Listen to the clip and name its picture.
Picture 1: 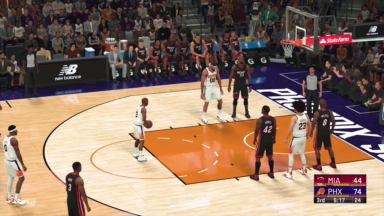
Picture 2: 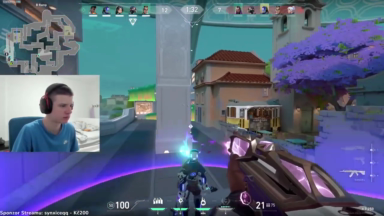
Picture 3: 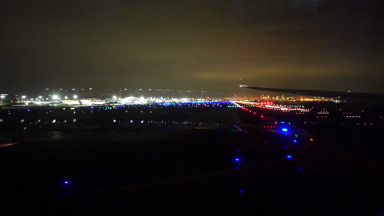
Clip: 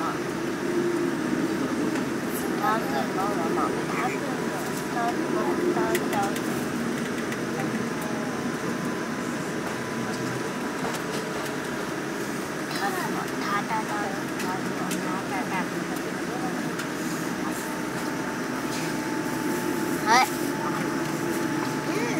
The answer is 3